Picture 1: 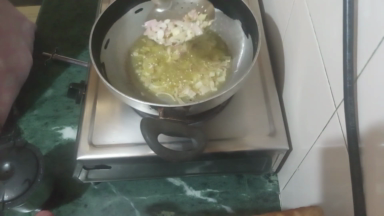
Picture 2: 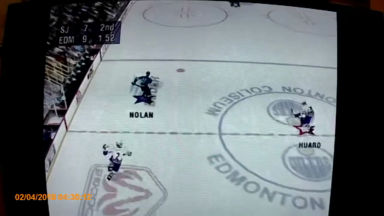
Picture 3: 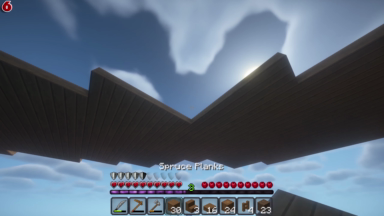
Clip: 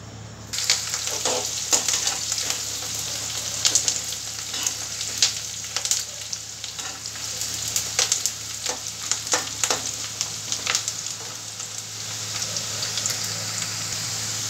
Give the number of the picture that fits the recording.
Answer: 1